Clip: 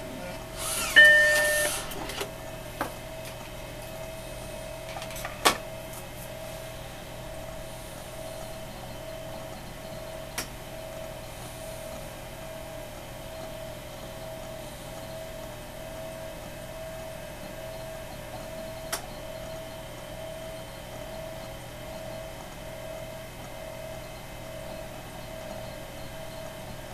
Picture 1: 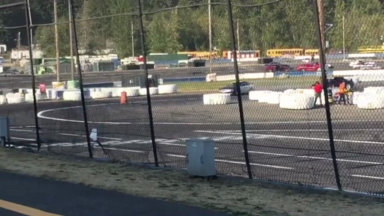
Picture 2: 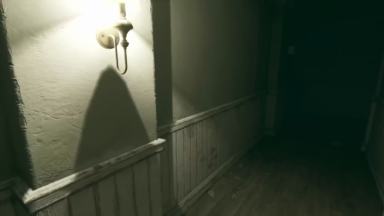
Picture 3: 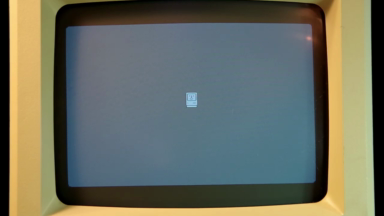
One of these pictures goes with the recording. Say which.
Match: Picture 3